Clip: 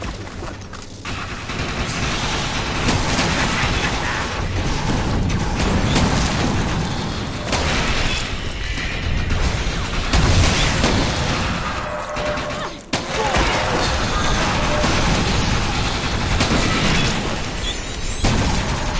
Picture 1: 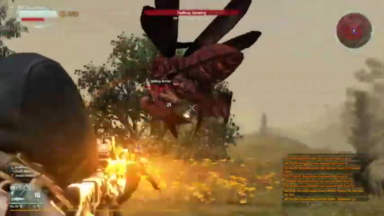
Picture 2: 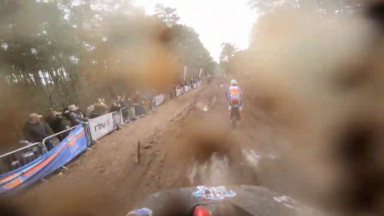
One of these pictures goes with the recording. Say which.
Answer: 1